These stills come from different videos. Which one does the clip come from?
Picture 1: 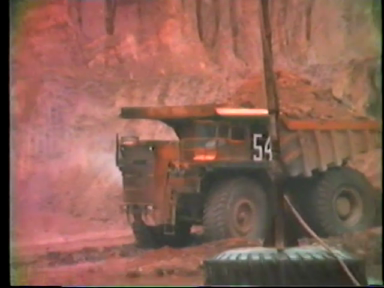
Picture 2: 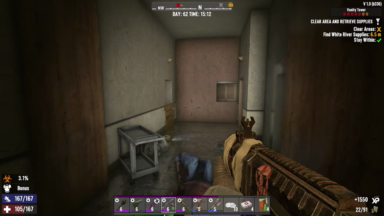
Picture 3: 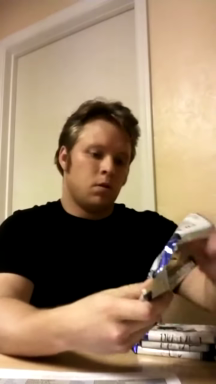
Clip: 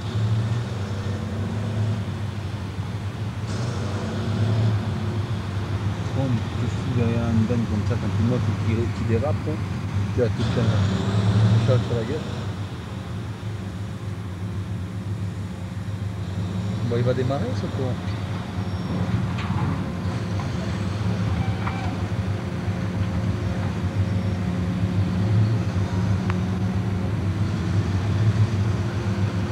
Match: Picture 1